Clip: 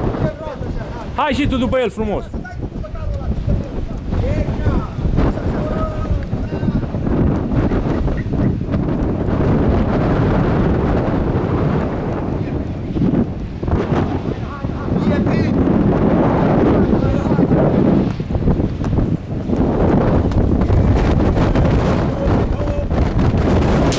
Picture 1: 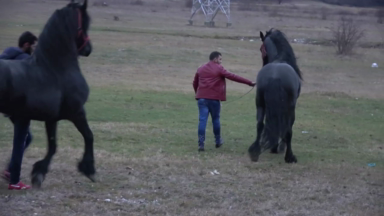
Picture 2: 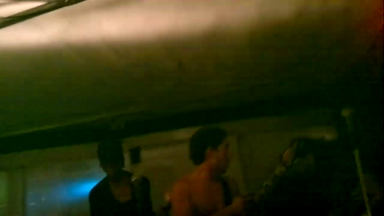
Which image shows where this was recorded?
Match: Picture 1